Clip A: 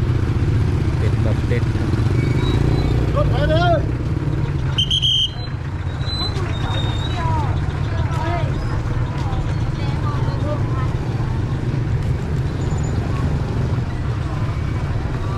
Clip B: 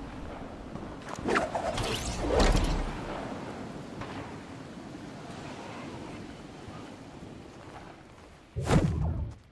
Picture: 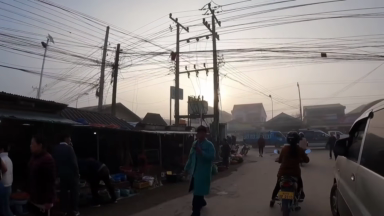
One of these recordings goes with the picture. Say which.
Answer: A